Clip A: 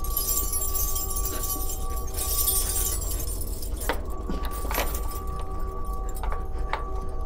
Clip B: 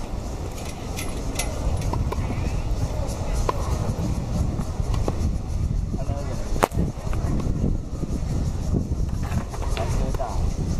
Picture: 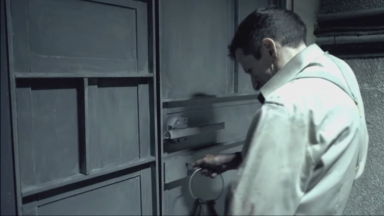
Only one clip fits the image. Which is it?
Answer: A